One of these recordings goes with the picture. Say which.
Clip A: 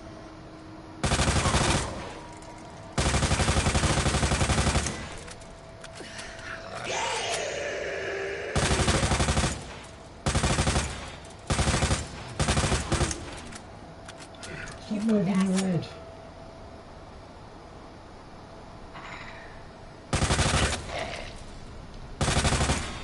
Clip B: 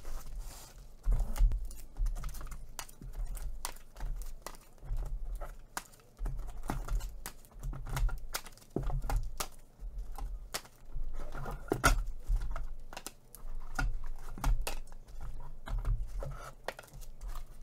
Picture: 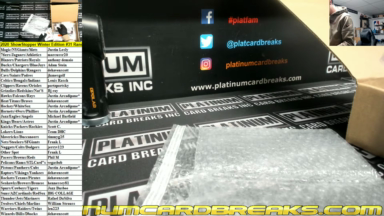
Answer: B